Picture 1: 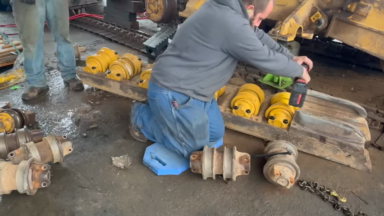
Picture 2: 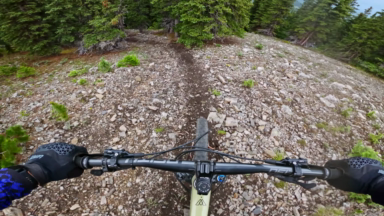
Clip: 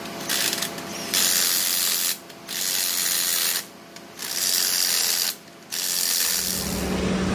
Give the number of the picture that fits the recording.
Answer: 1